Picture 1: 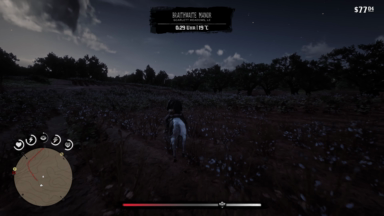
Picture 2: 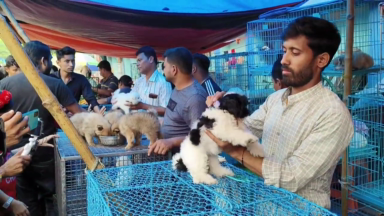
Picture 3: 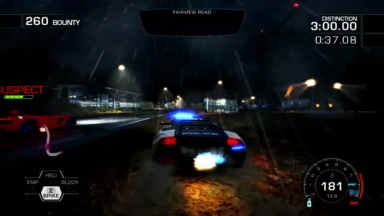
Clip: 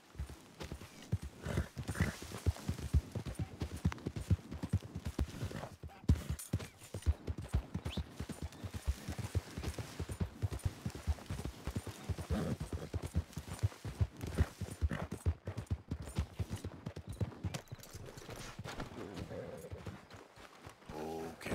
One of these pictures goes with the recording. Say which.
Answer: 1